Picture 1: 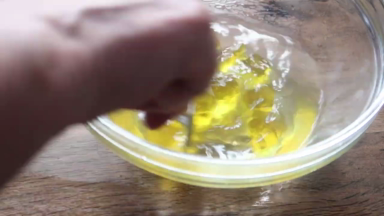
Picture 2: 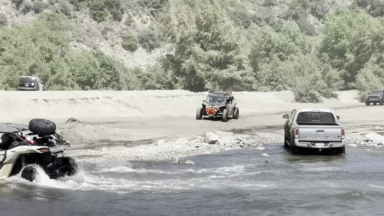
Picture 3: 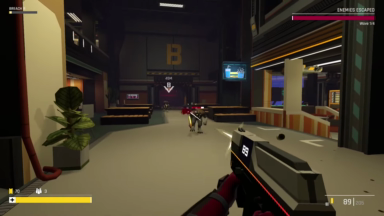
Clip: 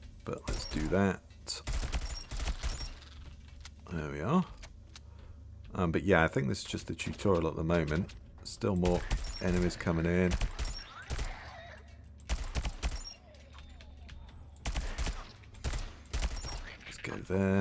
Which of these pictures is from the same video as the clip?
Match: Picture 3